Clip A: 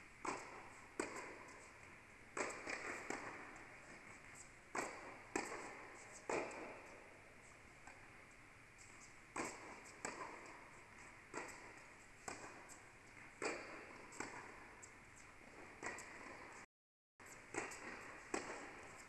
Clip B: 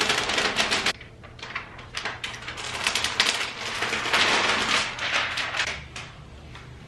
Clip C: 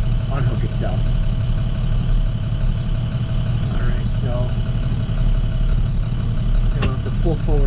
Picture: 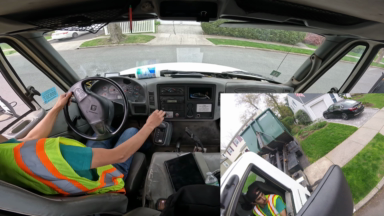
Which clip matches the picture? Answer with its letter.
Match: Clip C